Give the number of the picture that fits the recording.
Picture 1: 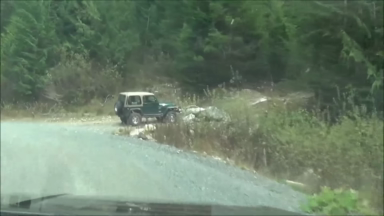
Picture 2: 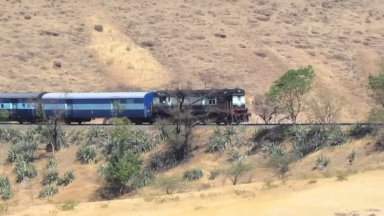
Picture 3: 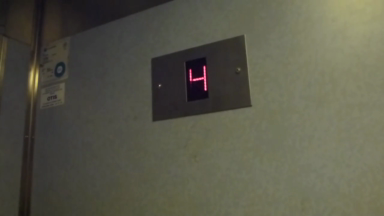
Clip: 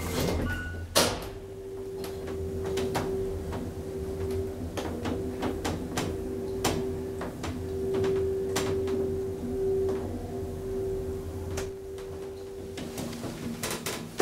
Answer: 3